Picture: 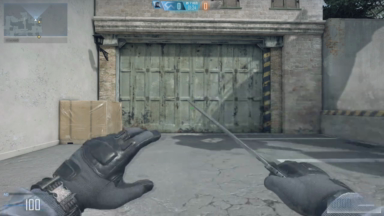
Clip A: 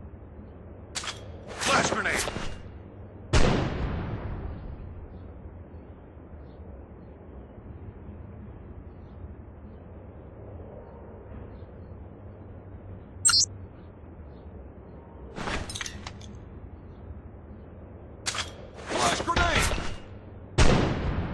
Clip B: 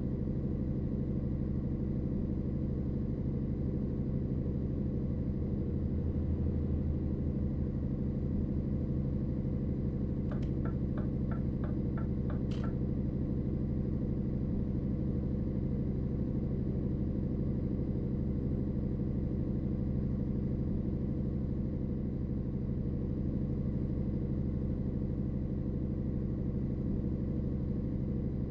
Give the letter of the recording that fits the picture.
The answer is A